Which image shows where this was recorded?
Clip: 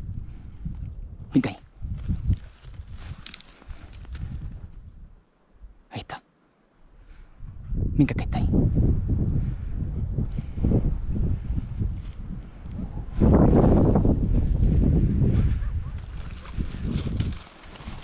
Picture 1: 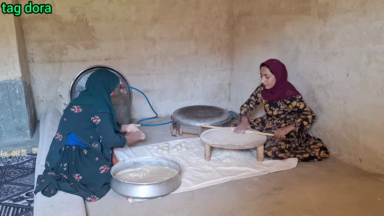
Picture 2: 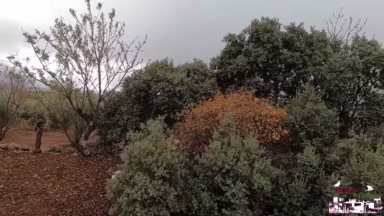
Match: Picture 2